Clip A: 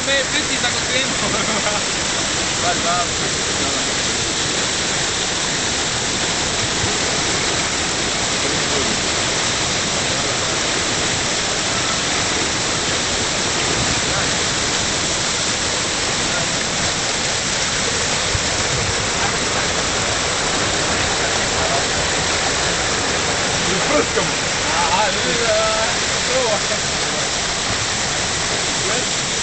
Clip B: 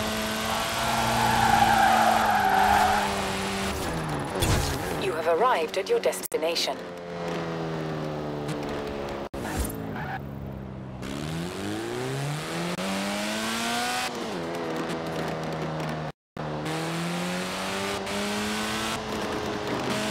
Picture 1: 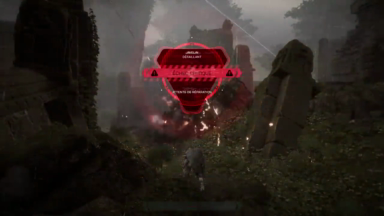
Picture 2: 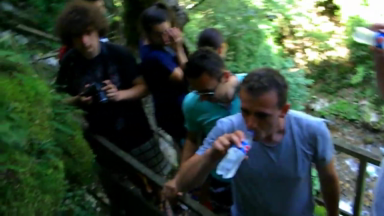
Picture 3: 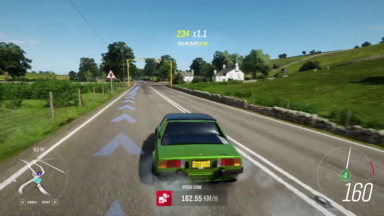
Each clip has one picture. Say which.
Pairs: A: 2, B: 3